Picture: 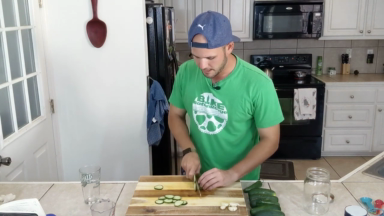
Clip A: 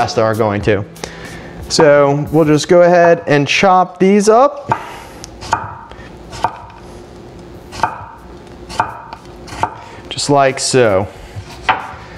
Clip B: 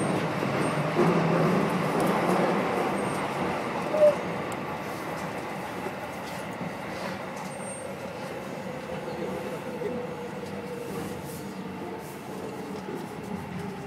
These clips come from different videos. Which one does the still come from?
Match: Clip A